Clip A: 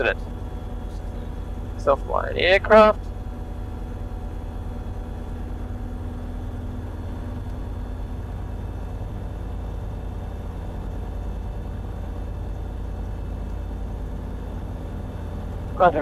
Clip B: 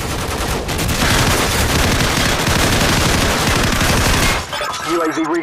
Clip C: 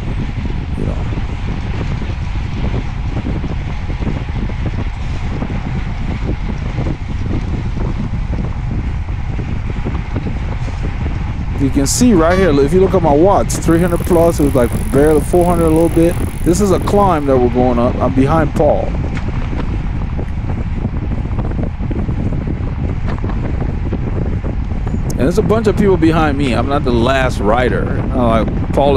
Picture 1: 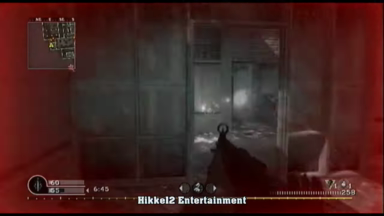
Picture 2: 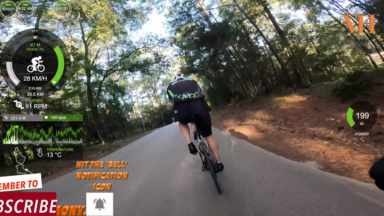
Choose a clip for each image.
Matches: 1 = B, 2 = C